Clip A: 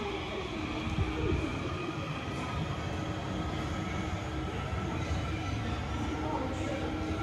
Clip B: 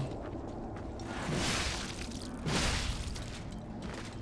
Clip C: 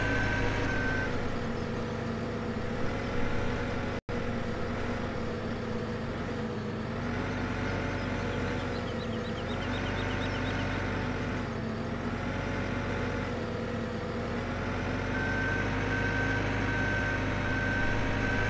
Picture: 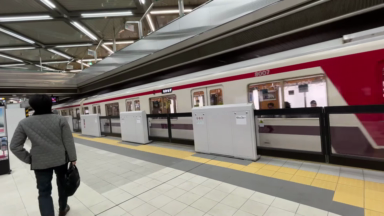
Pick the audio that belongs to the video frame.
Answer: A